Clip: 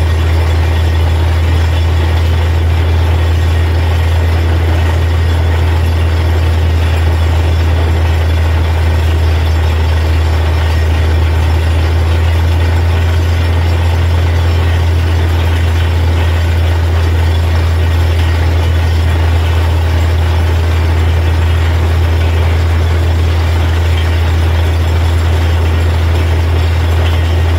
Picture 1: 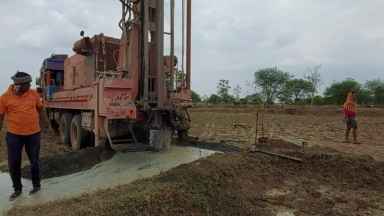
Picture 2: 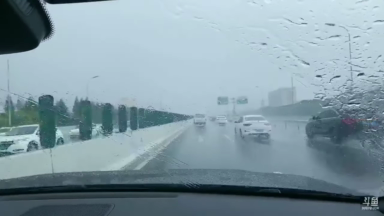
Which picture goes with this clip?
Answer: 1